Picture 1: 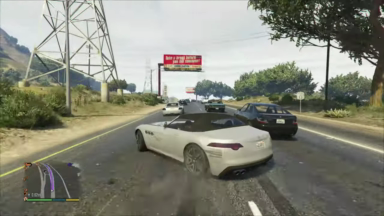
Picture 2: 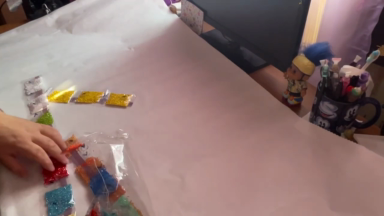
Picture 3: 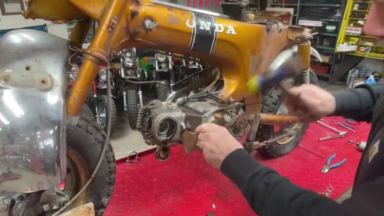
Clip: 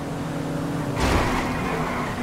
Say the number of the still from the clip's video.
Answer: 1